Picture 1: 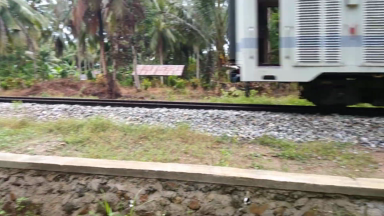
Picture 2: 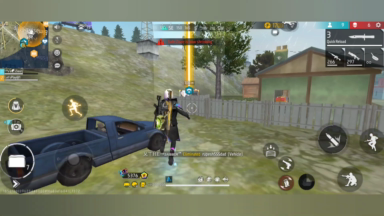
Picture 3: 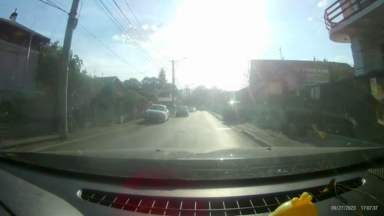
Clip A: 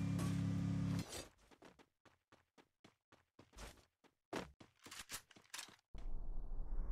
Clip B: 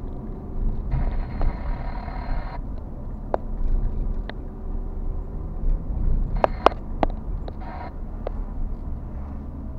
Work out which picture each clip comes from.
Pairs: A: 2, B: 3